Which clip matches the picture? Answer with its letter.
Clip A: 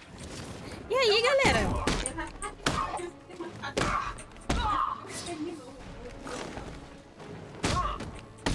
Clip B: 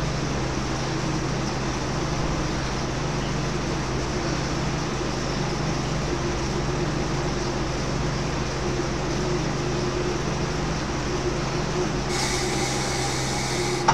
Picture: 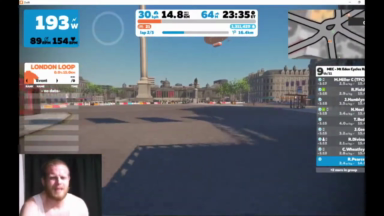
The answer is B